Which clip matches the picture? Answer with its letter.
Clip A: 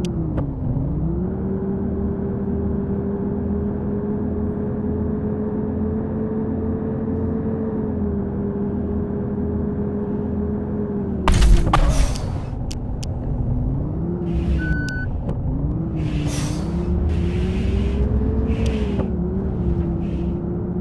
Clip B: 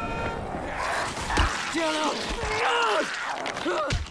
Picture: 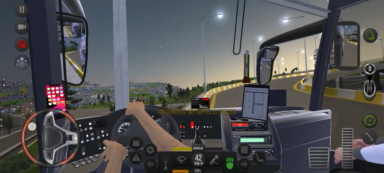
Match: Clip A